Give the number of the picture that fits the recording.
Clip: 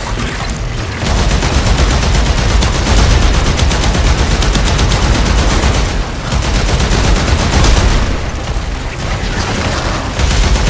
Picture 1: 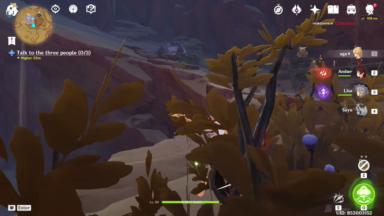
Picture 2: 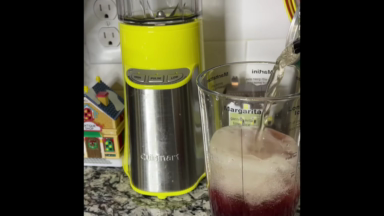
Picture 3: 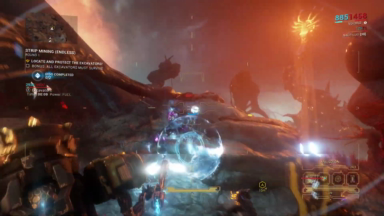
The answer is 3